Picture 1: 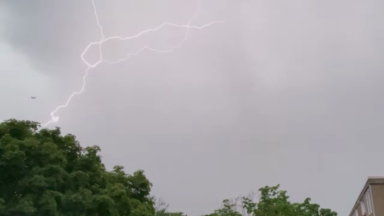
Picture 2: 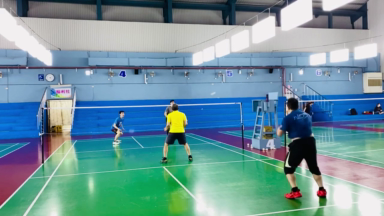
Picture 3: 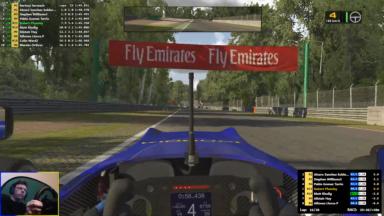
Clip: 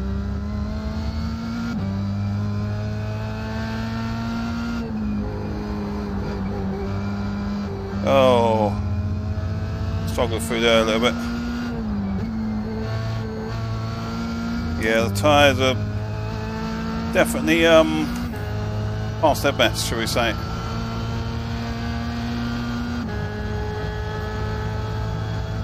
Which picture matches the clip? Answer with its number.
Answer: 3